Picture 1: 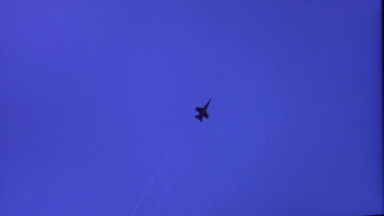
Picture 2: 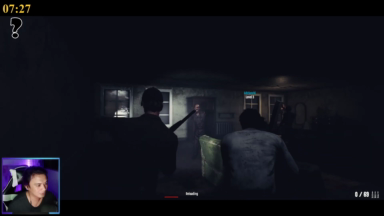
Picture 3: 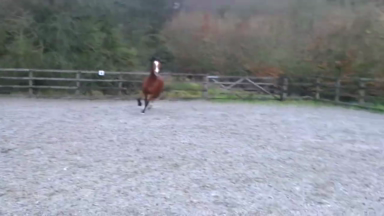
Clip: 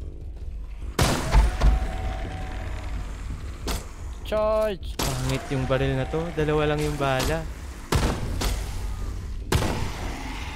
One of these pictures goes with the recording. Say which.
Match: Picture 2